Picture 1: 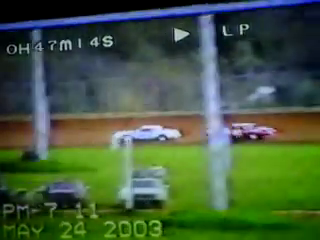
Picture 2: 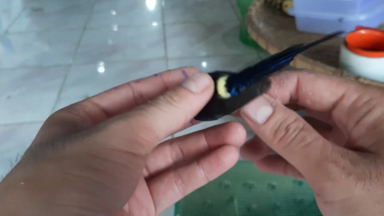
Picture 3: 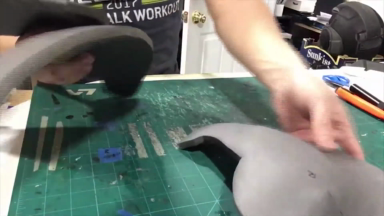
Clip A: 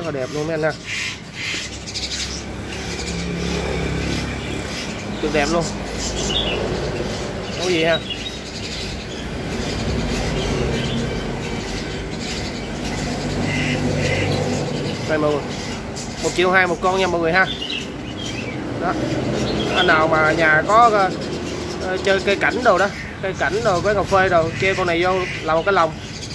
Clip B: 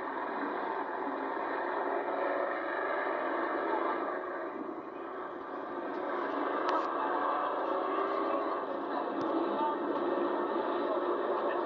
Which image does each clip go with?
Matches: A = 2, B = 1